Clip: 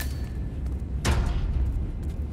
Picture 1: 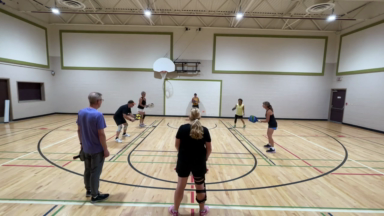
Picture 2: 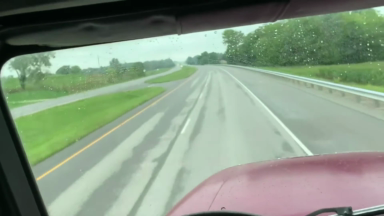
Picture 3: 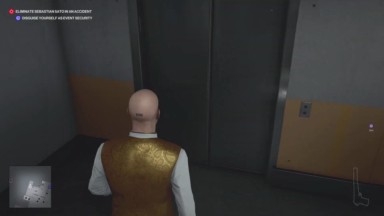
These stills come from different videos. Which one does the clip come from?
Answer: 3